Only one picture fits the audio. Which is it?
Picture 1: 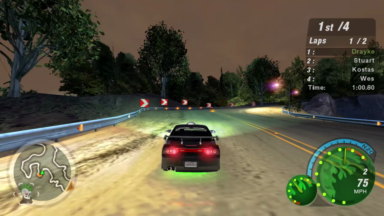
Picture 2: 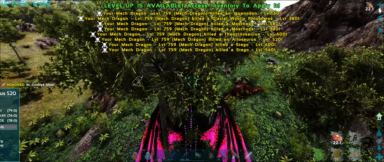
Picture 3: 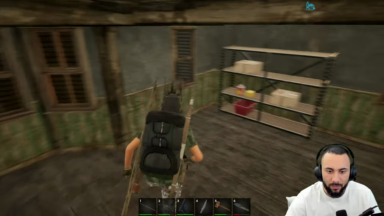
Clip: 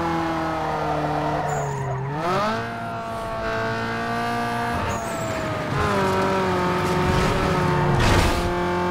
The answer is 1